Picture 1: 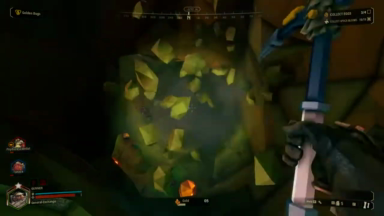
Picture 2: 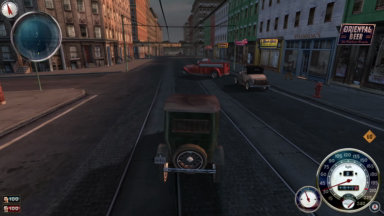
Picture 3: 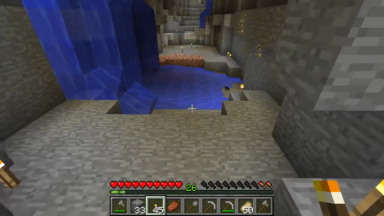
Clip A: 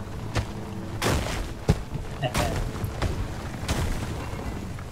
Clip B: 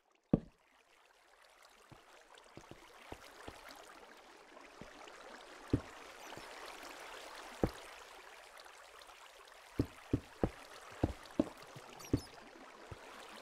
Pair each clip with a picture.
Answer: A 1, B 3